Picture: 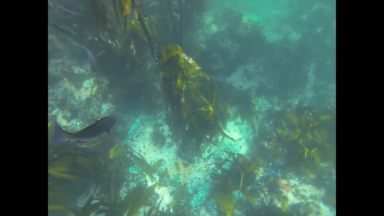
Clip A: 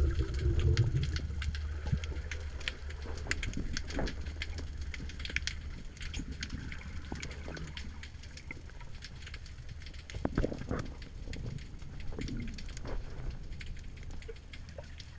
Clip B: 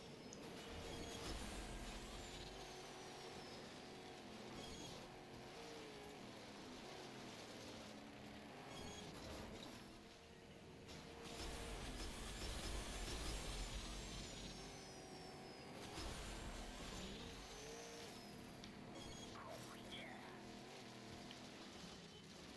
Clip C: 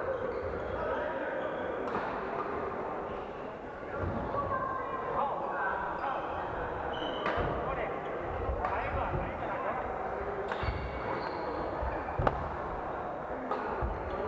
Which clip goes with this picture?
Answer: A